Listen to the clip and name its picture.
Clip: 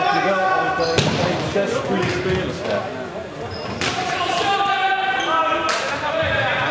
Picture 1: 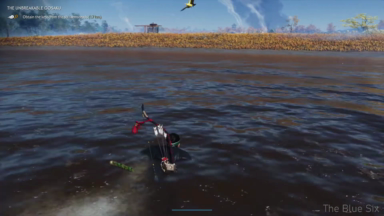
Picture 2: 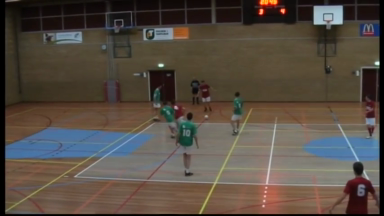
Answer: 2